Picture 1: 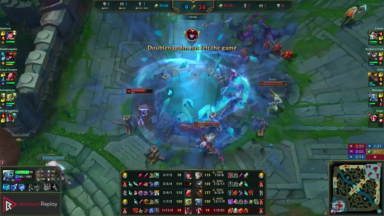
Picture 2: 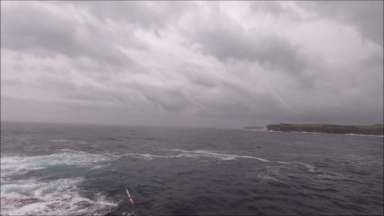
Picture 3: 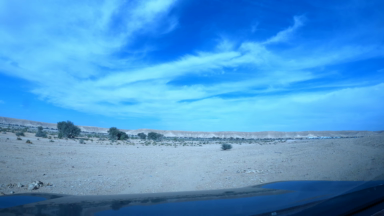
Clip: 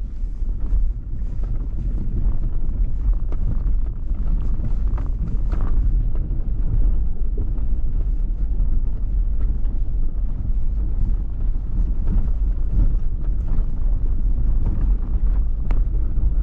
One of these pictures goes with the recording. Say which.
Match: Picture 3